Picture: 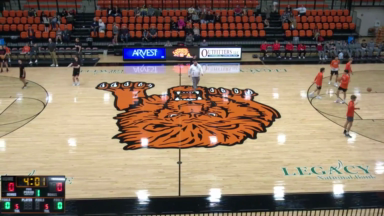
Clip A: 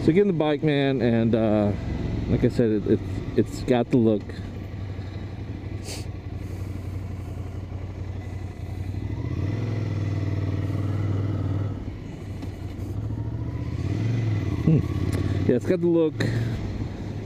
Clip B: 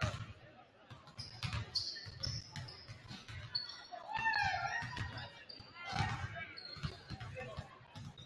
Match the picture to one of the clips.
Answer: B